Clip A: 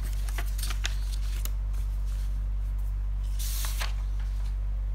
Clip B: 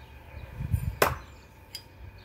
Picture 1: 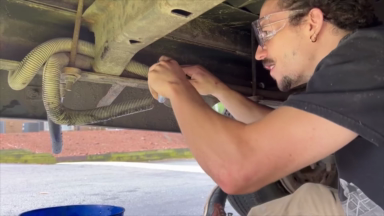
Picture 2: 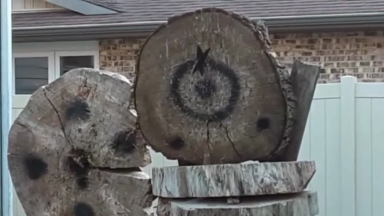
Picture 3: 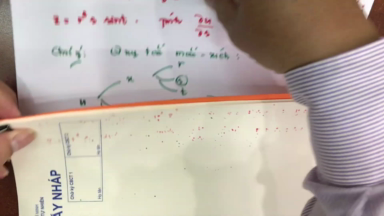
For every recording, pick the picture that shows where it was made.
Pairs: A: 3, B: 2